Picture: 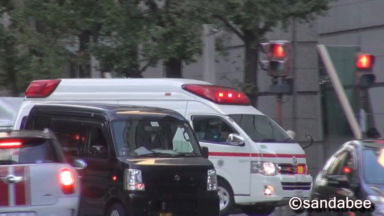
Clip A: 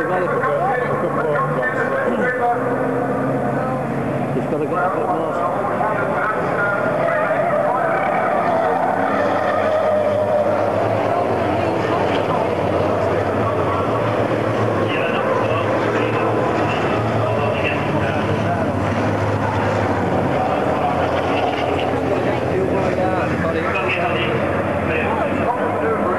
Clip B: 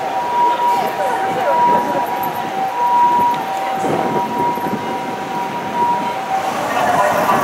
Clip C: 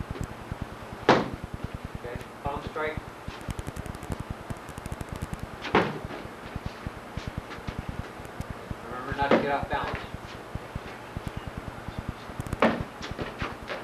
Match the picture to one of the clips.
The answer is B